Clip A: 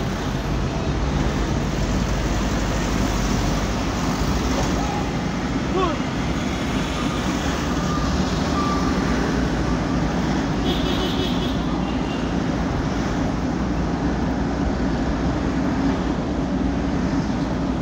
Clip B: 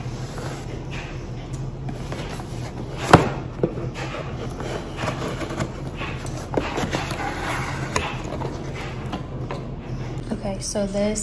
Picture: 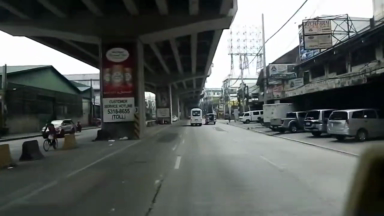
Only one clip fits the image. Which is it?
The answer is A